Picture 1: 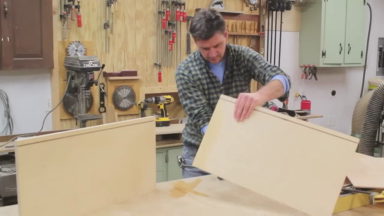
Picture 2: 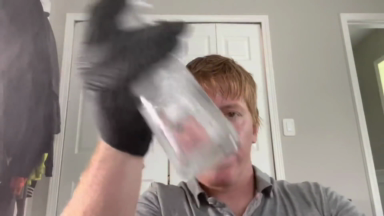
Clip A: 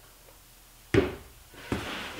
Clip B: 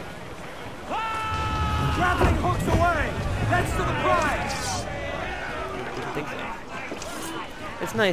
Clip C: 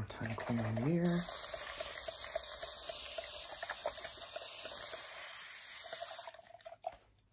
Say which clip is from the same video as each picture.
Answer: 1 A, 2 C